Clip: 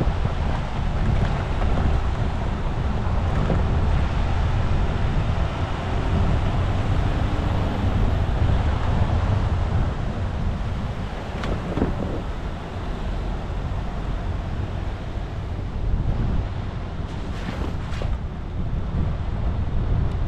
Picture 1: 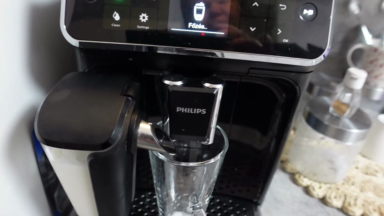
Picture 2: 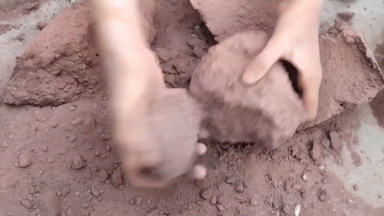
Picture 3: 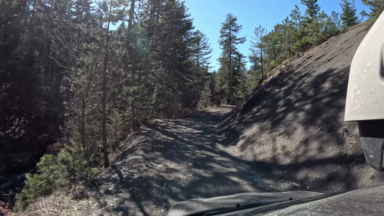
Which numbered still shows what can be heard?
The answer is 3